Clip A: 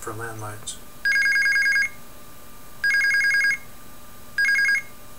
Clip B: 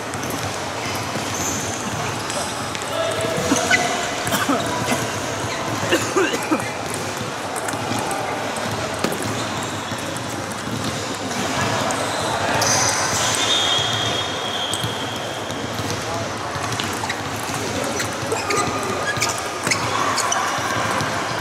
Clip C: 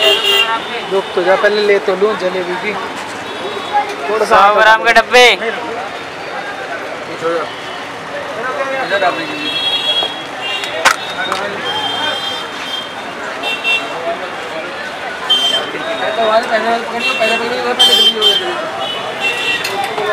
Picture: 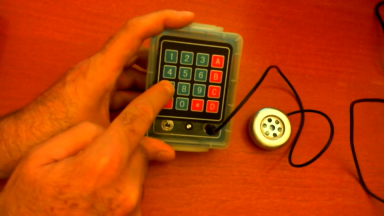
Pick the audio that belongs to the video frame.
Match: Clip A